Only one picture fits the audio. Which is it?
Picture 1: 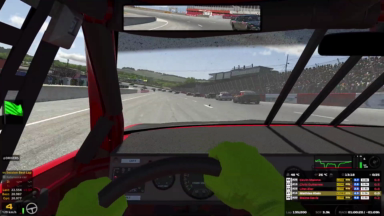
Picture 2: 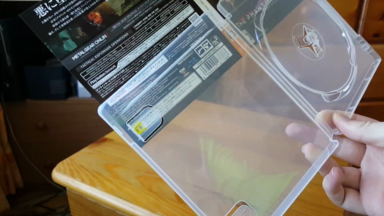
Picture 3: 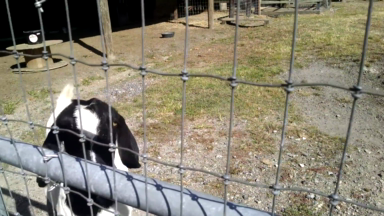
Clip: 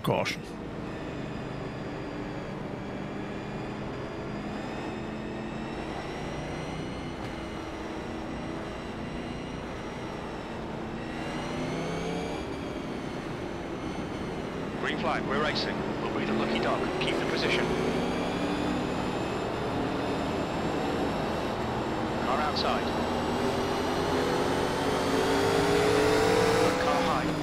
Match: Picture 1